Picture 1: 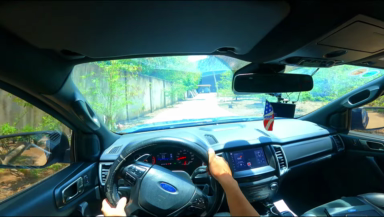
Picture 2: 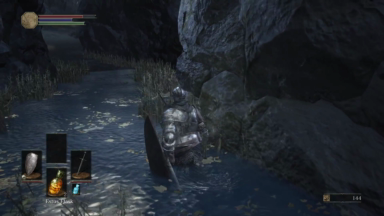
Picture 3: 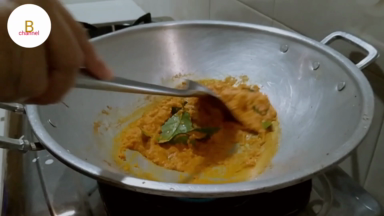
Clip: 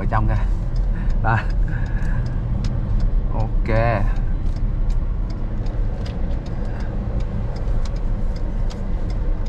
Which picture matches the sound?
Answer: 1